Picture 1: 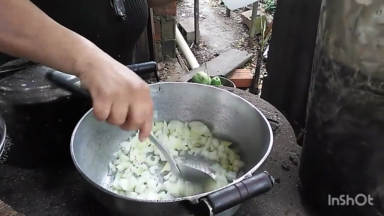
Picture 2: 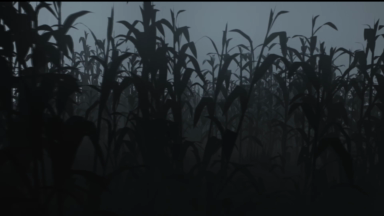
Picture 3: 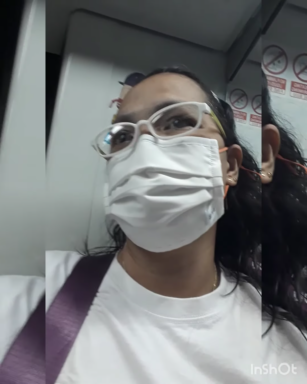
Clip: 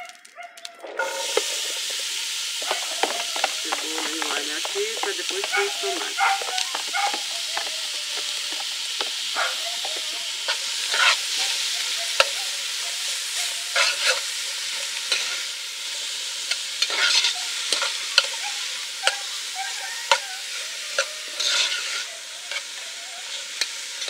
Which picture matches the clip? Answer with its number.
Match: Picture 1